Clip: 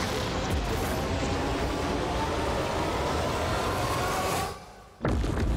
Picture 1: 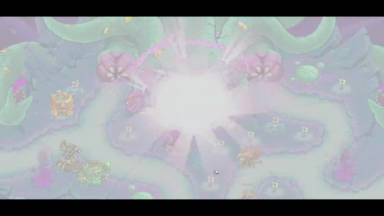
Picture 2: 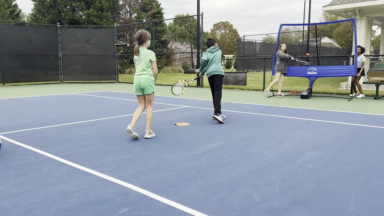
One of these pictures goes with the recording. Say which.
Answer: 1